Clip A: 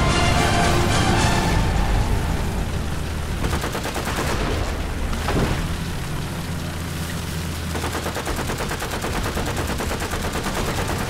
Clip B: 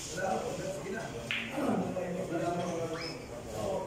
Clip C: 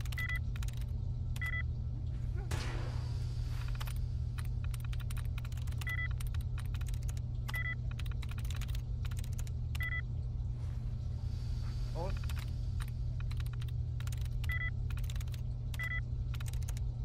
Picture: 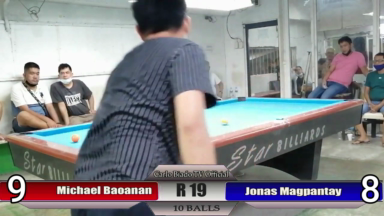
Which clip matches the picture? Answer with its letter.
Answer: B